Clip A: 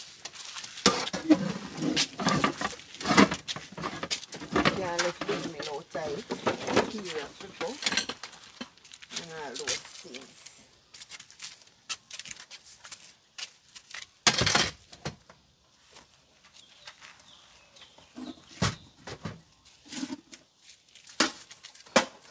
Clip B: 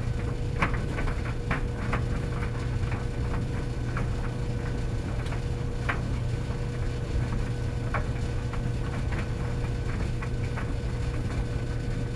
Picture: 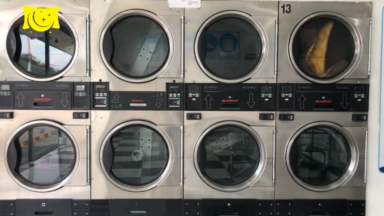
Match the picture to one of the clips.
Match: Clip B